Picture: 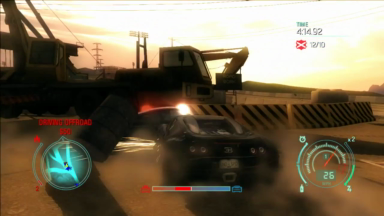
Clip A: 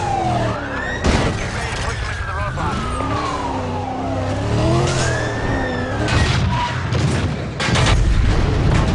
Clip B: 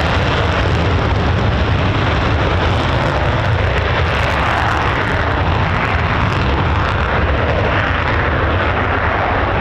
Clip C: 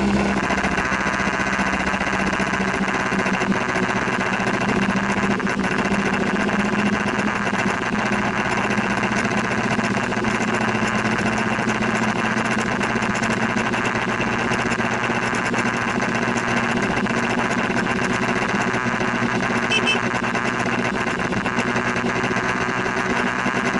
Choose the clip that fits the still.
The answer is A